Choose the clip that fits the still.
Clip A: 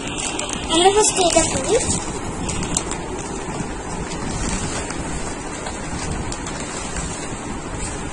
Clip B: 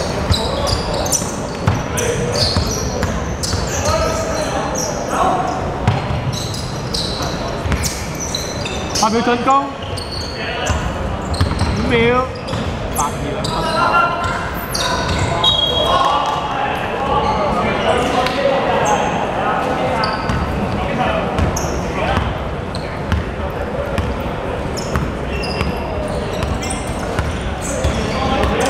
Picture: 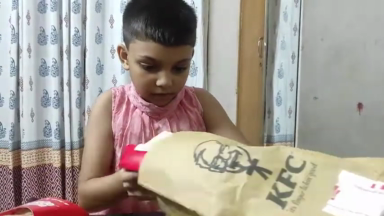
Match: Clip A